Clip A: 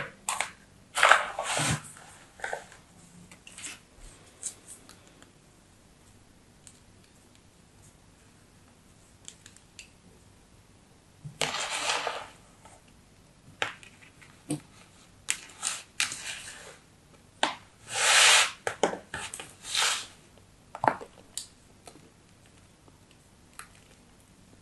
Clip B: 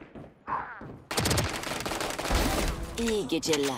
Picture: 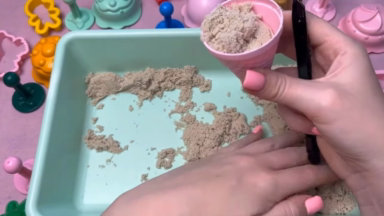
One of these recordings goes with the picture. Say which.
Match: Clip A